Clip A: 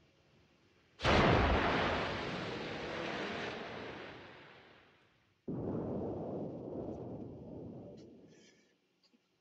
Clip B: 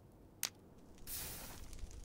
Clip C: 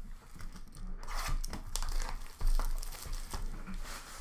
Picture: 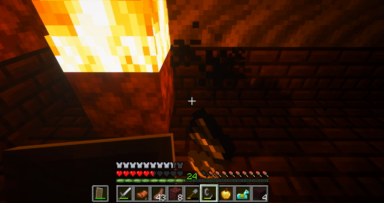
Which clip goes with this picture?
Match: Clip B